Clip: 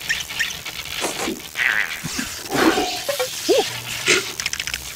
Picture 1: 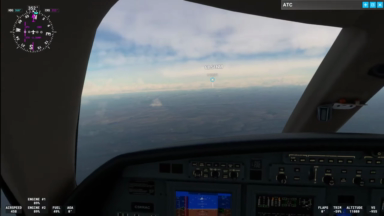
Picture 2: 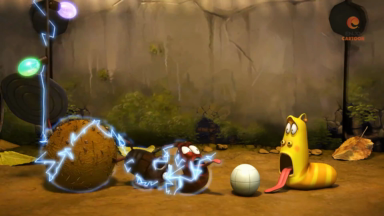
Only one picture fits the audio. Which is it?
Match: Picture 2